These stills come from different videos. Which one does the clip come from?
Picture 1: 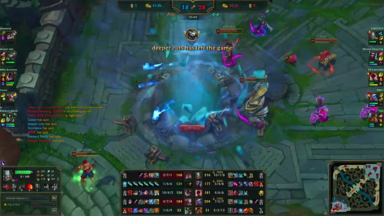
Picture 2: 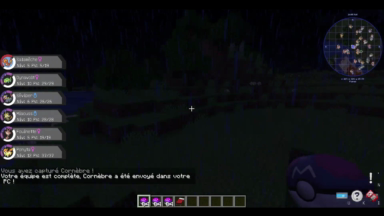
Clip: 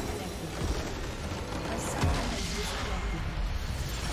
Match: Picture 1